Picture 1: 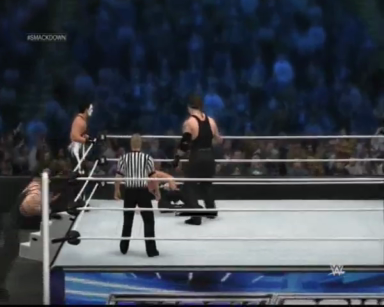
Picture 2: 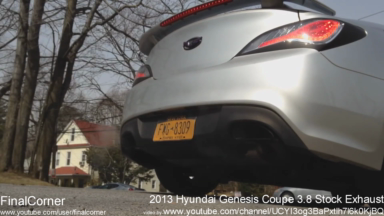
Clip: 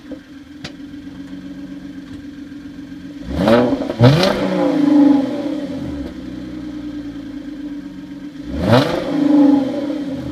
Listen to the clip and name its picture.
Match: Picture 2